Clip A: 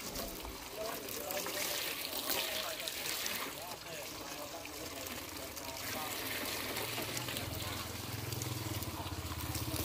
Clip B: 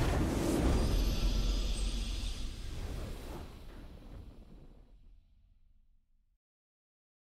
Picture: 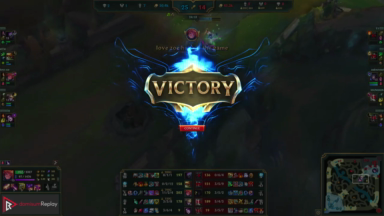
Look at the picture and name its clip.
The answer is B